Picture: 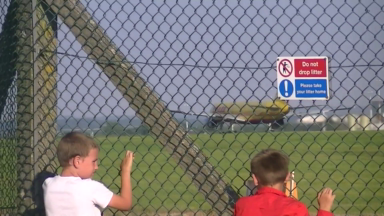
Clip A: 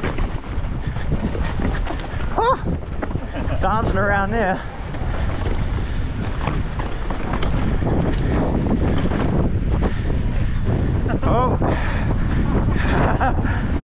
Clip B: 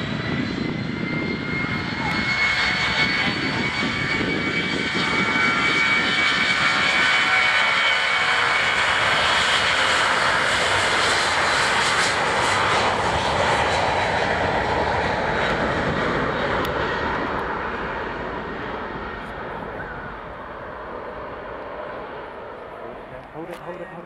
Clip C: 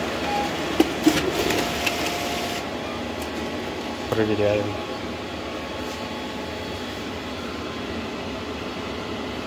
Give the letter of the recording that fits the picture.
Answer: B